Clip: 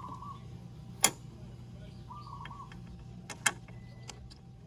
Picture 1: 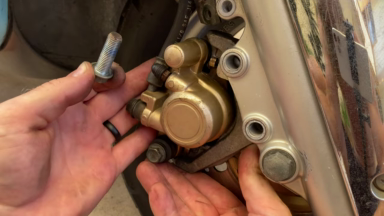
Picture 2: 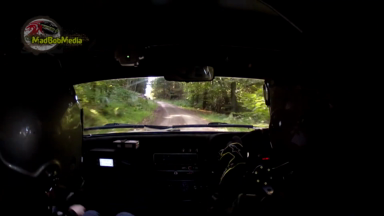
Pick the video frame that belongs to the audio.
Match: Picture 1